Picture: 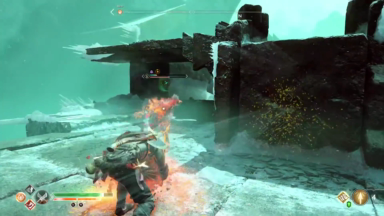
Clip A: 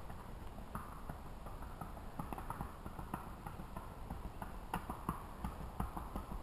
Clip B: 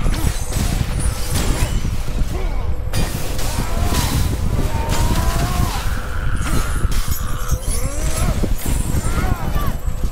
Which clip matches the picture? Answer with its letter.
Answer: B